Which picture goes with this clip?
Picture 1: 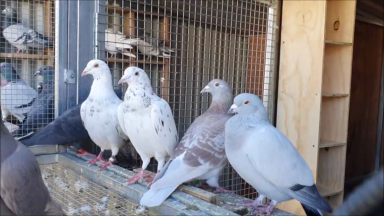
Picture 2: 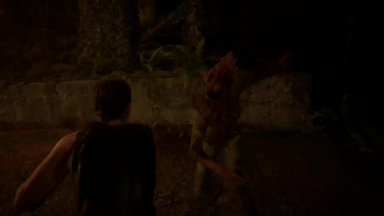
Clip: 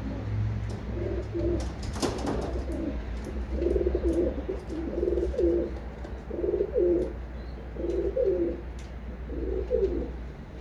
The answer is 1